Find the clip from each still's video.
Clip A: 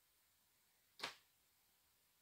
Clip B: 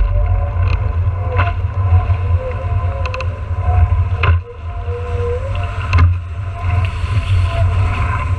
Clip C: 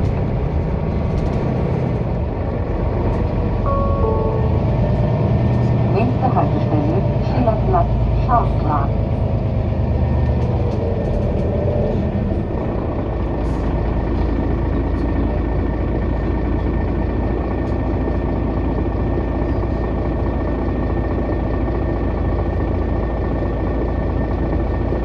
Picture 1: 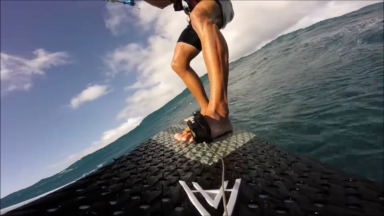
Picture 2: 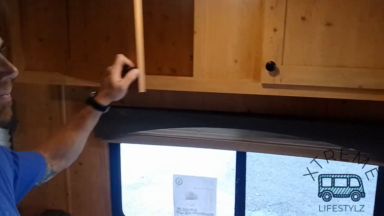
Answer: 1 B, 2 A